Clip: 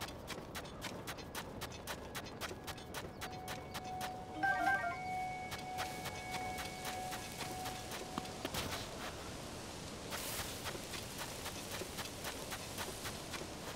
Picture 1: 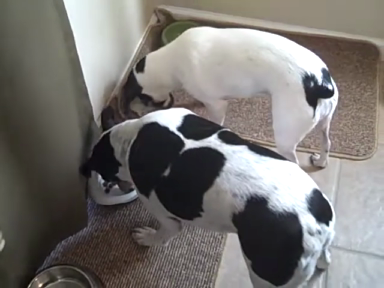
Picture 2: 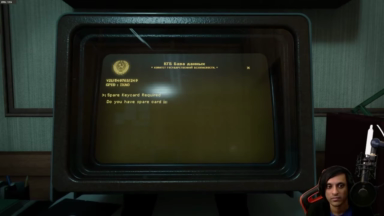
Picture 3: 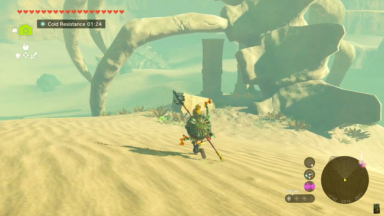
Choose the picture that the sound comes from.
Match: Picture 3